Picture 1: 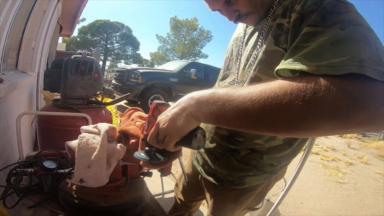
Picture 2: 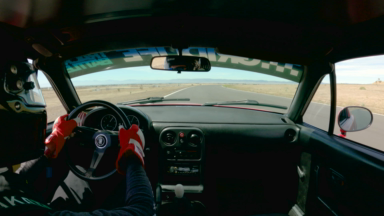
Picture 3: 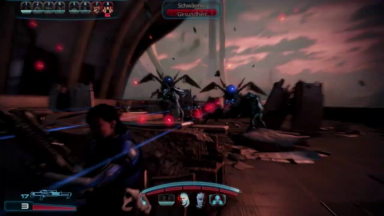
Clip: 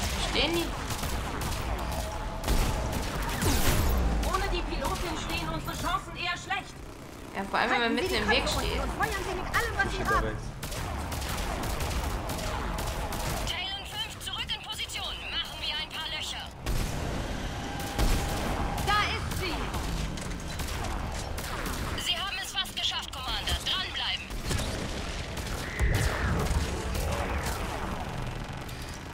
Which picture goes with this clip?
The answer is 3